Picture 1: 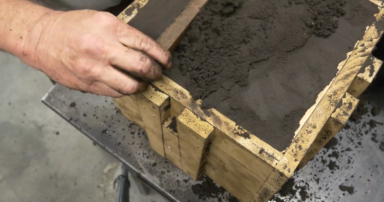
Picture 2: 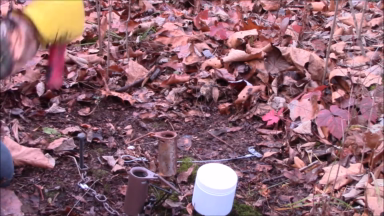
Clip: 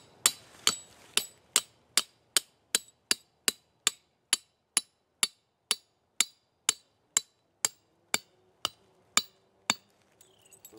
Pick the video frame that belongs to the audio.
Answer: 2